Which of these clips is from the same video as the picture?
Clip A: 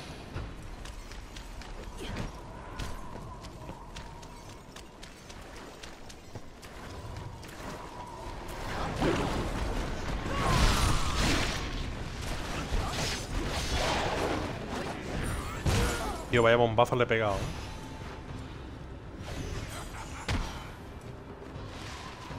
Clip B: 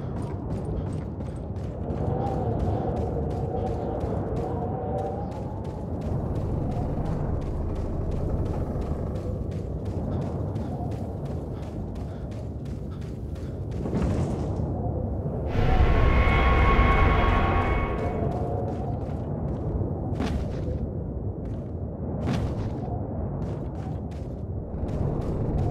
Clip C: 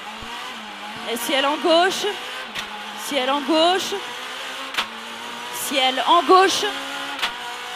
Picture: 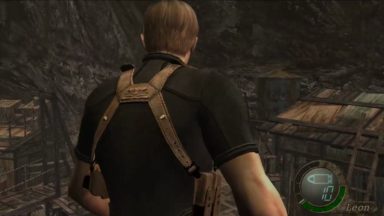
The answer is B